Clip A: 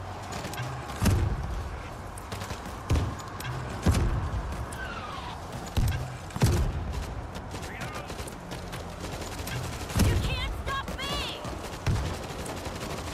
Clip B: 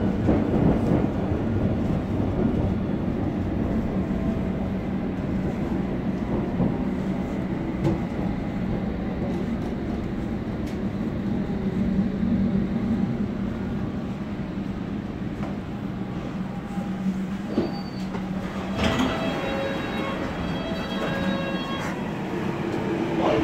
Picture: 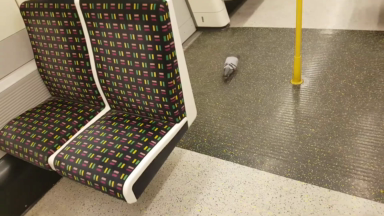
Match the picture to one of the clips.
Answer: B